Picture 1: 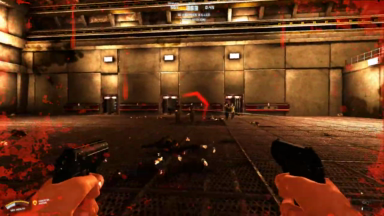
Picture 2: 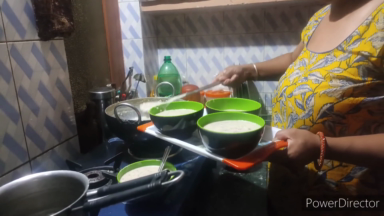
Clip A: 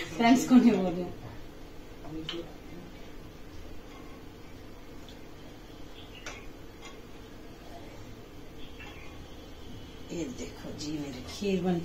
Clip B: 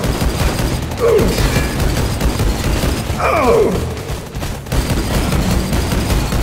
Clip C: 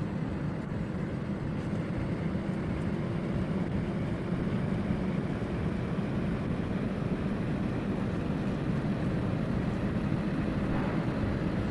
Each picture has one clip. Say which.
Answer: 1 B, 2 A